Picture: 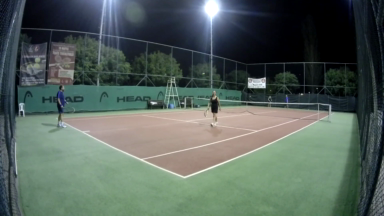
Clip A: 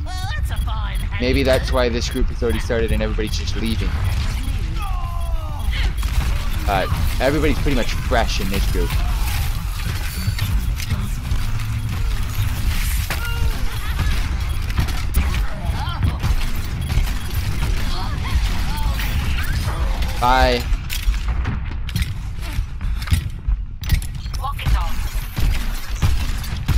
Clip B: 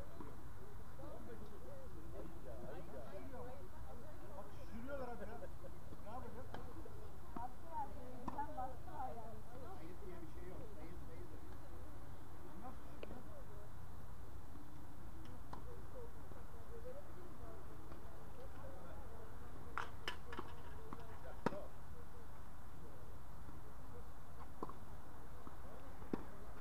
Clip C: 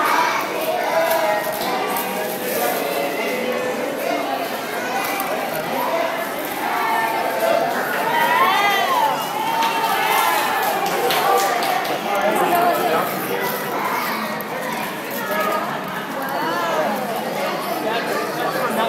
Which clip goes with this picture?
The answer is B